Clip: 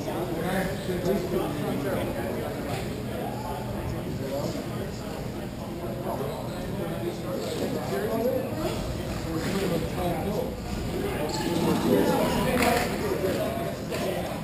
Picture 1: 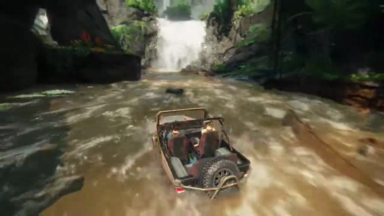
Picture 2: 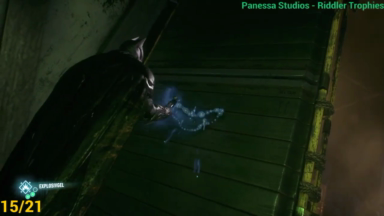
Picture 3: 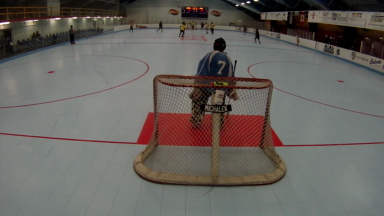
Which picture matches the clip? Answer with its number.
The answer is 3